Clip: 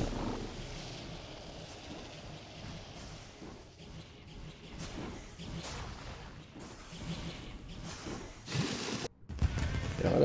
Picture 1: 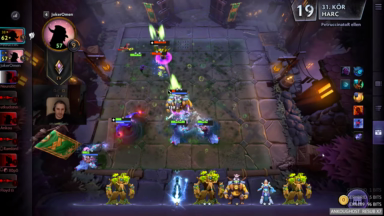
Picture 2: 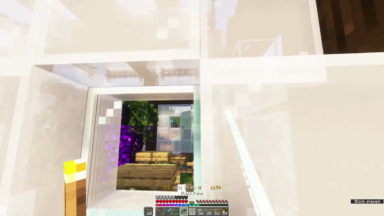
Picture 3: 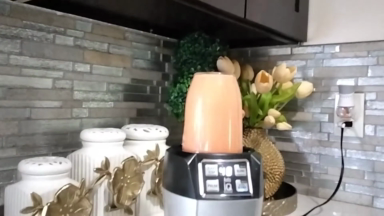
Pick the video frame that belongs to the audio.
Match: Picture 1